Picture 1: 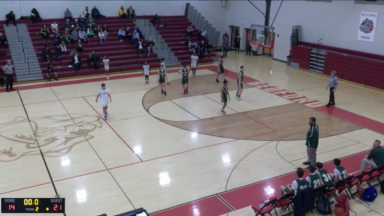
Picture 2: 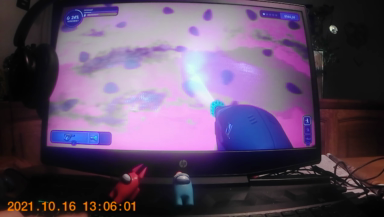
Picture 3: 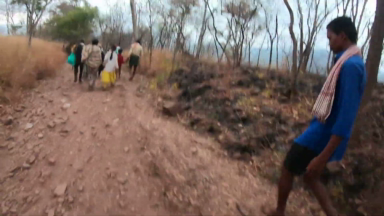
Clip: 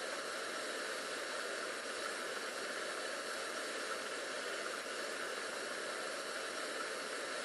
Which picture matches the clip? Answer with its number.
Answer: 2